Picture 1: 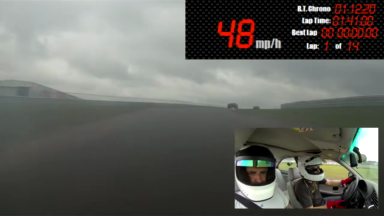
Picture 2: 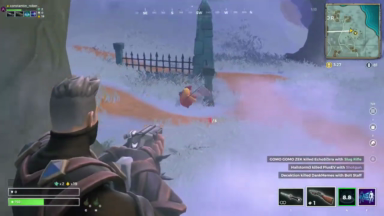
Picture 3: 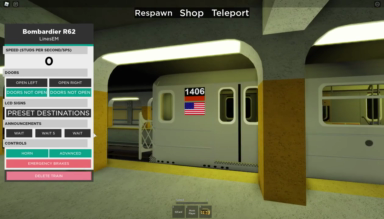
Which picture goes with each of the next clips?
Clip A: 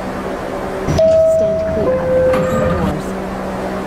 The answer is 3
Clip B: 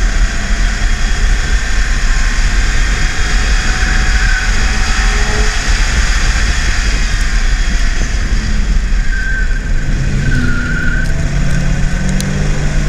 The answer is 1